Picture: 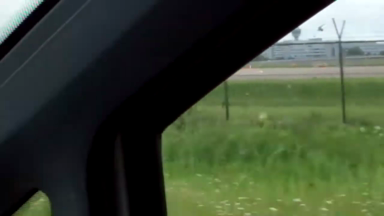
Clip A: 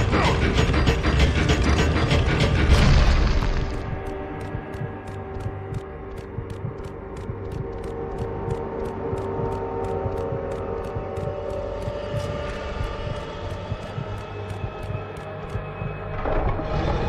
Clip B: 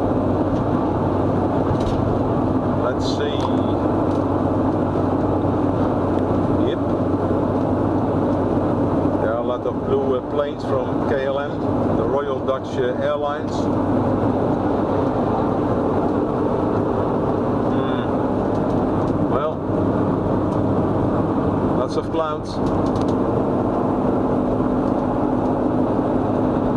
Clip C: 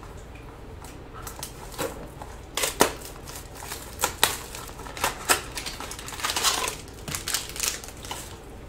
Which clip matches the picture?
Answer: B